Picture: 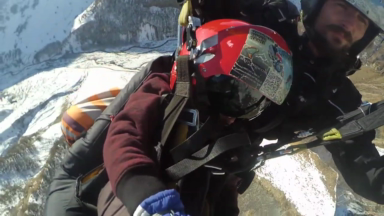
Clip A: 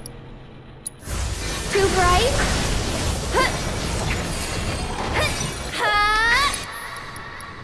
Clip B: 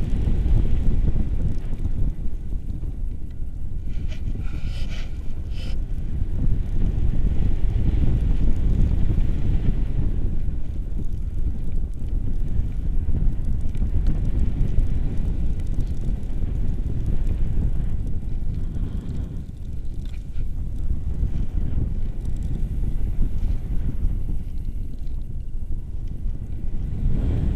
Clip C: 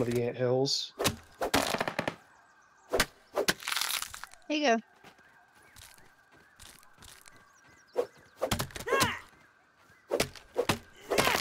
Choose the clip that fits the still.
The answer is B